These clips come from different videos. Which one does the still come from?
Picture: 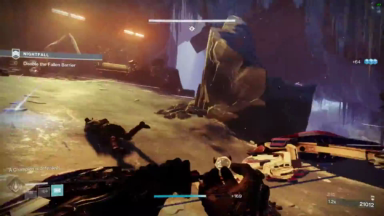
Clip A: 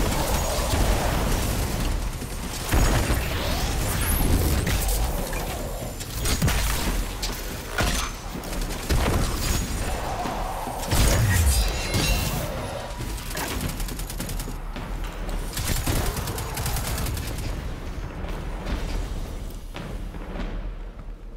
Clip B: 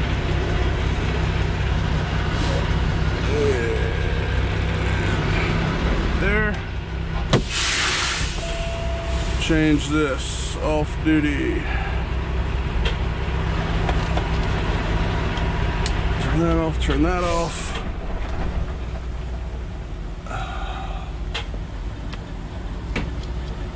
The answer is A